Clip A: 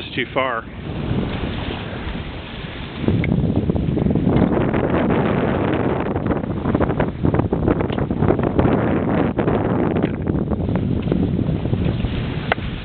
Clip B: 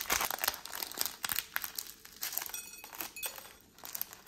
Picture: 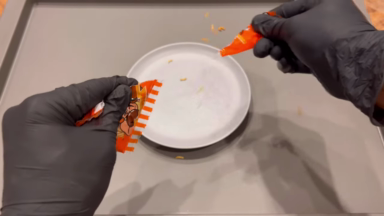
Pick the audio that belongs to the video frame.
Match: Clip B